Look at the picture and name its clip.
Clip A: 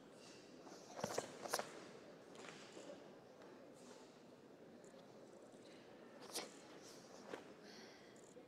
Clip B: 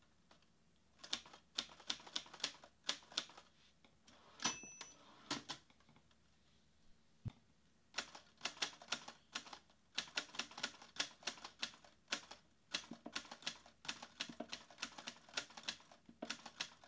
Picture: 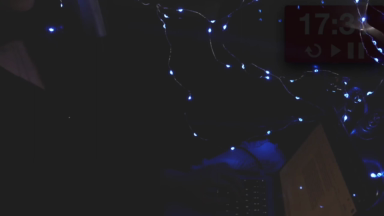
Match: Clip B